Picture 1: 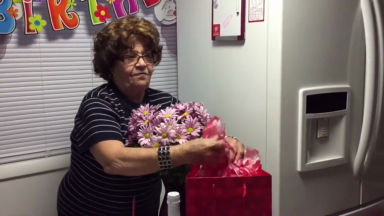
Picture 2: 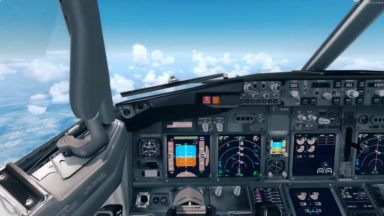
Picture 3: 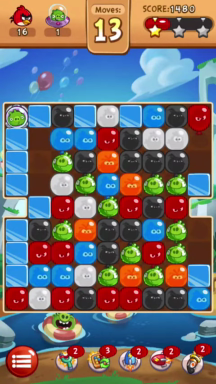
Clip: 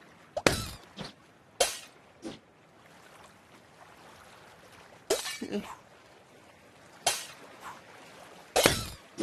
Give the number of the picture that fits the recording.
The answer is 3